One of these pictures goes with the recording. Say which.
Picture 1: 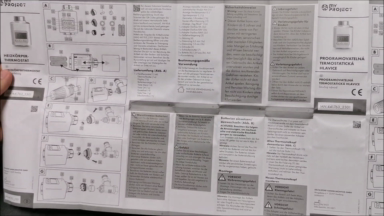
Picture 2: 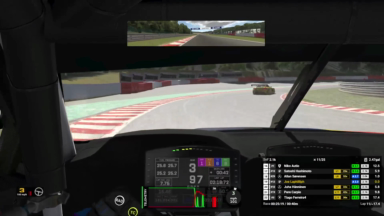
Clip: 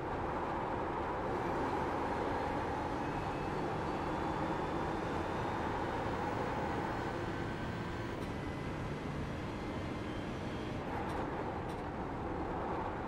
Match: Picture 2